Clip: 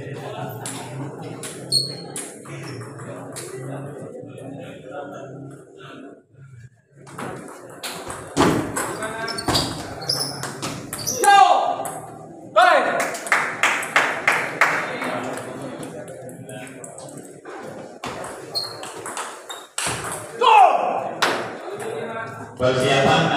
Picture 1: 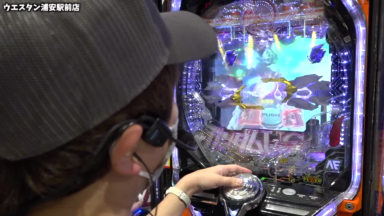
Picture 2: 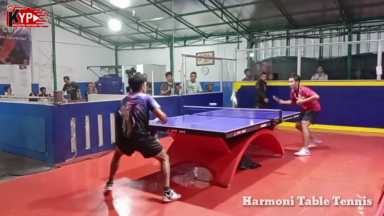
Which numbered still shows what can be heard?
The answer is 2